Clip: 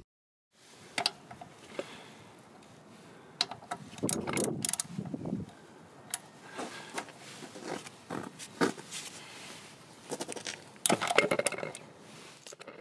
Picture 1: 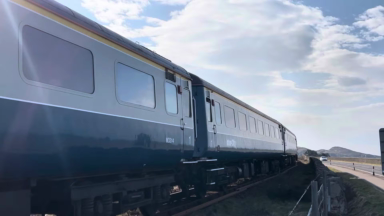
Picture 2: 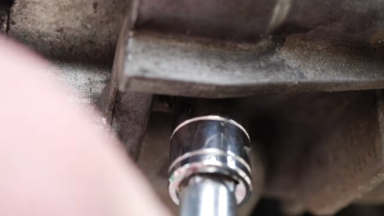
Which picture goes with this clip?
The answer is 2